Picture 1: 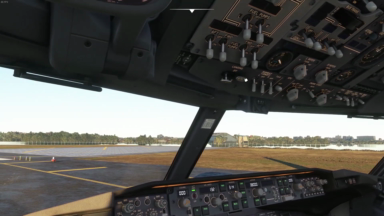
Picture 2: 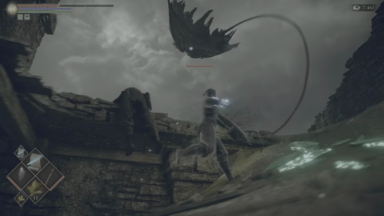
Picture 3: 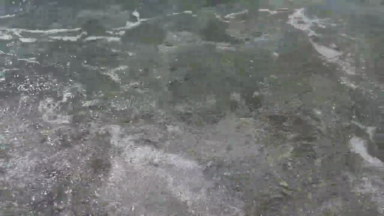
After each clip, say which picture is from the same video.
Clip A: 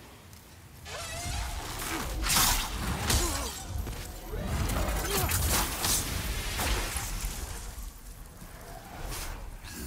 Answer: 2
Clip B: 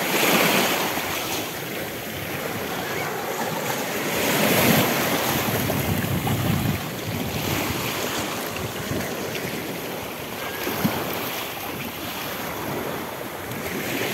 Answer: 3